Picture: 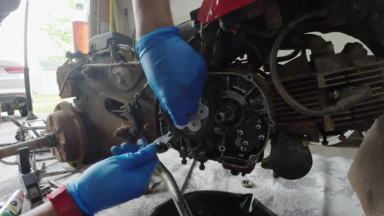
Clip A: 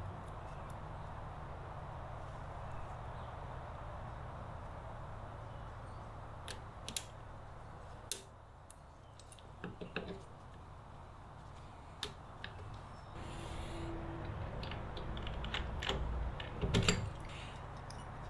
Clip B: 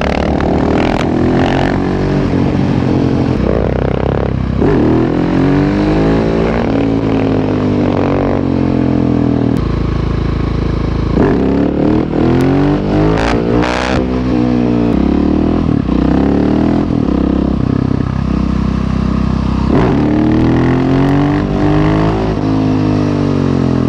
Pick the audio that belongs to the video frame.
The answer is A